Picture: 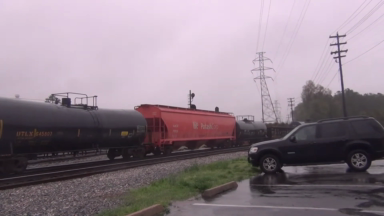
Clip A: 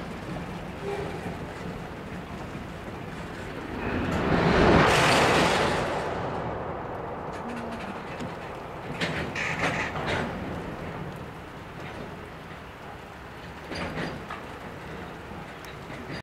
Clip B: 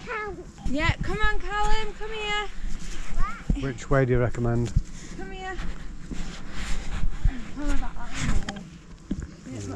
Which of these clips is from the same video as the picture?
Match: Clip A